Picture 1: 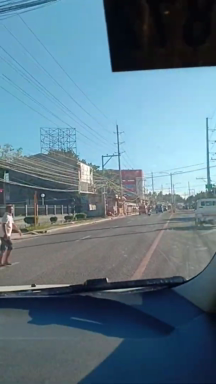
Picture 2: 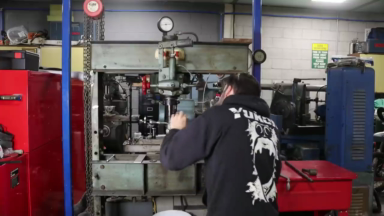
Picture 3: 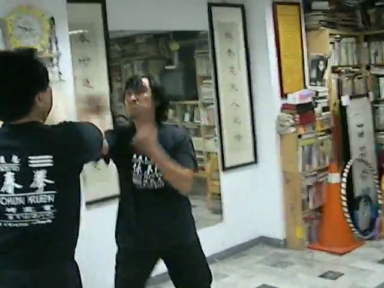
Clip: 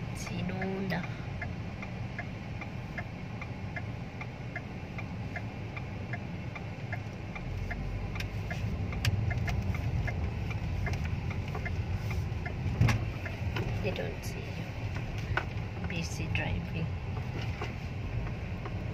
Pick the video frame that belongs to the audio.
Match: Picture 1